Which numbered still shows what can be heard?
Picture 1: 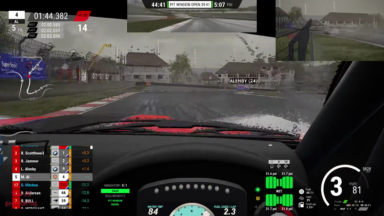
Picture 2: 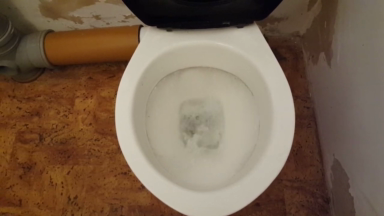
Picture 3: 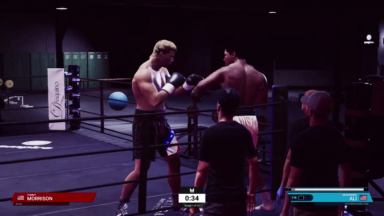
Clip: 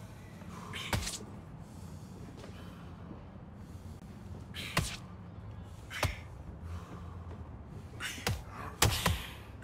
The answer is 3